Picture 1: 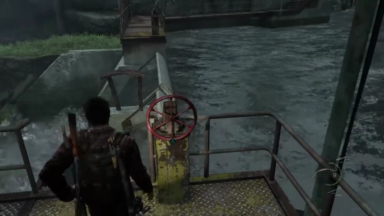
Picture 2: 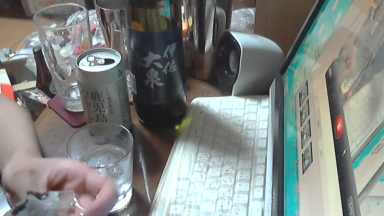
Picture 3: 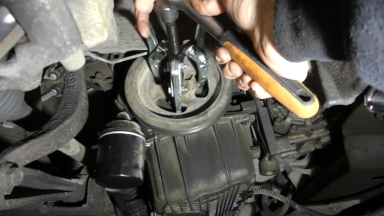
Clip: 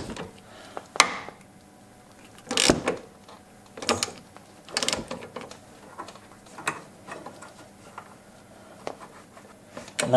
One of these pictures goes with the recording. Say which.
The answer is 3